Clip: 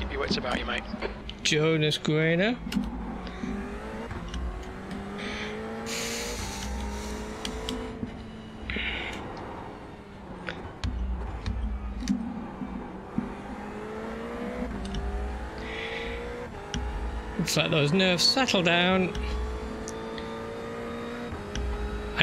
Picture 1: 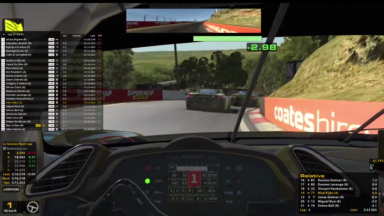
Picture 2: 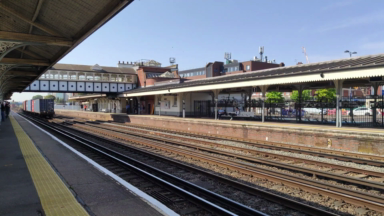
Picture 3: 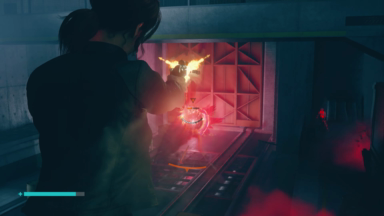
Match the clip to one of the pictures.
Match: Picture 1